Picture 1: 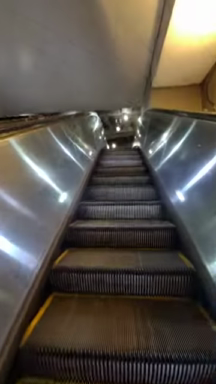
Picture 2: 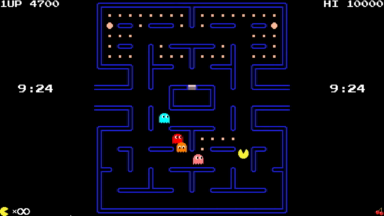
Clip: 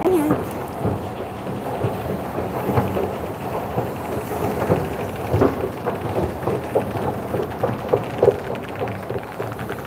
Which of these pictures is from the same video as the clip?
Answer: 1